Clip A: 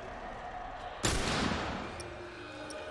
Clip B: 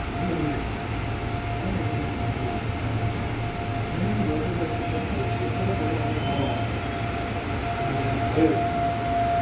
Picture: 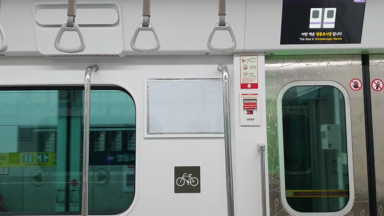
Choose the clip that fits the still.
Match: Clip B